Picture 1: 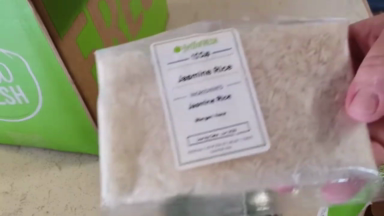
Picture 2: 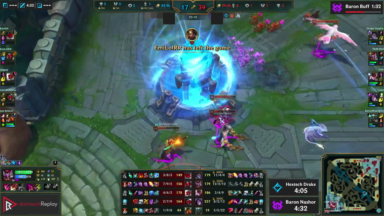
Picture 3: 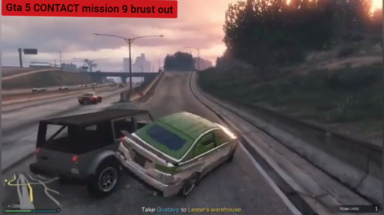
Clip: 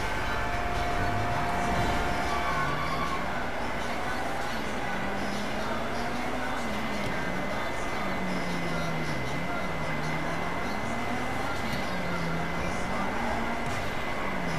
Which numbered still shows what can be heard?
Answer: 3